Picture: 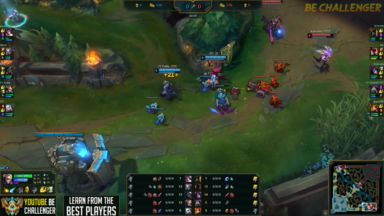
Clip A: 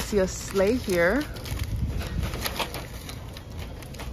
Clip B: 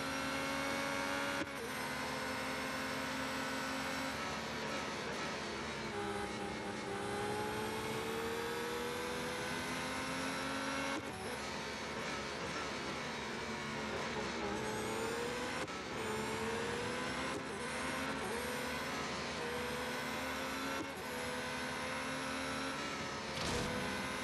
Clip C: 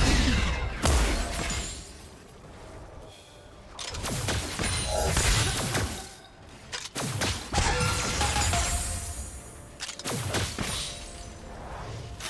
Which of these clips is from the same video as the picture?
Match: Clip C